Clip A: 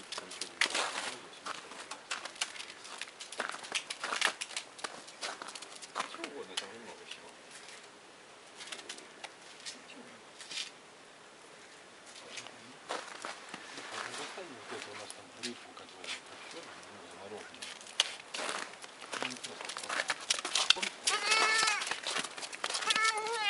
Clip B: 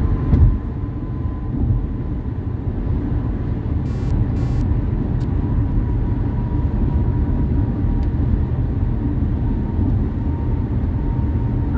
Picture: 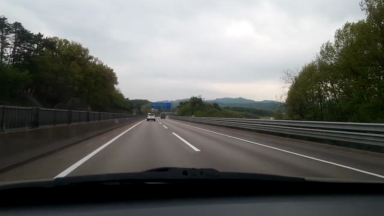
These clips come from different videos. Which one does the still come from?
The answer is B